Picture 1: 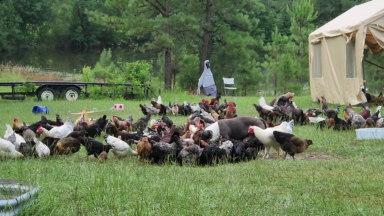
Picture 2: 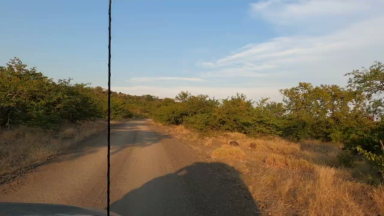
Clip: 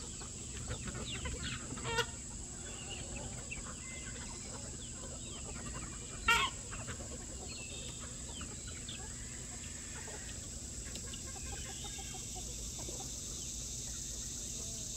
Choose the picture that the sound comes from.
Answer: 1